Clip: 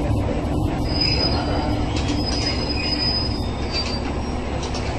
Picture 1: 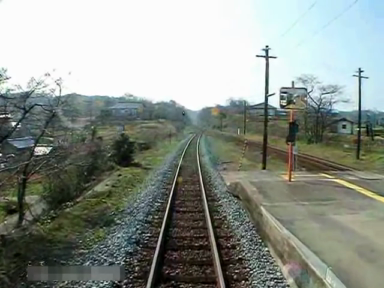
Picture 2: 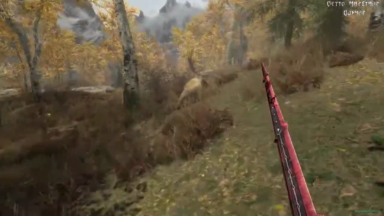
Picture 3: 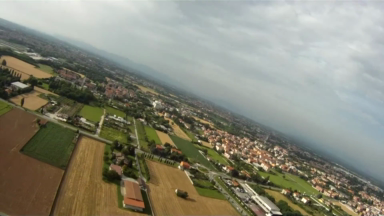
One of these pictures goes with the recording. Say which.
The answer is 1